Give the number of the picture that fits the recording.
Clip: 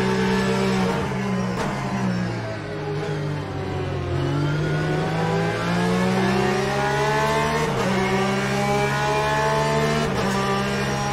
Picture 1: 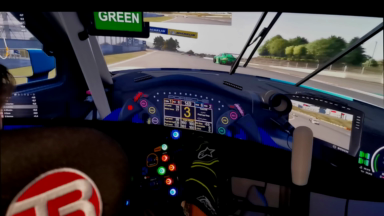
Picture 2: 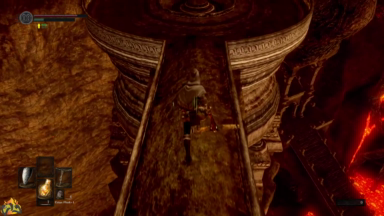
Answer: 1